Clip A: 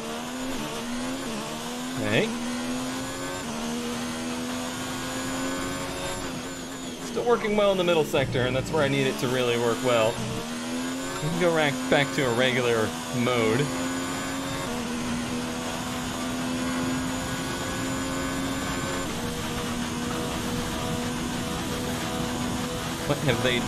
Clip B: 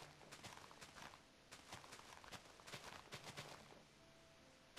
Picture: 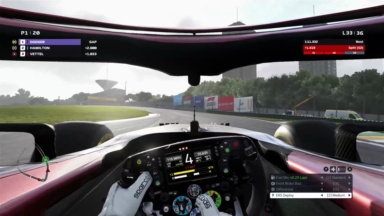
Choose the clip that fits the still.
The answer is A